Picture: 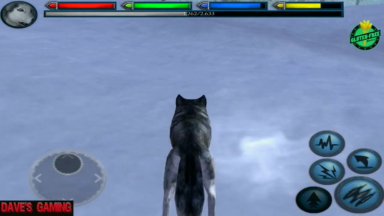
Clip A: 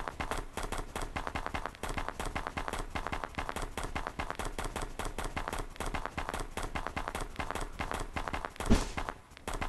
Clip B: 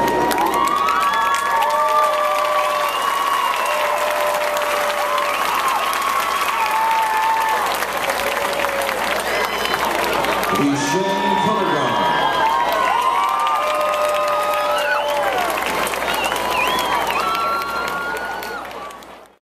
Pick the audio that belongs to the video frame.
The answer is A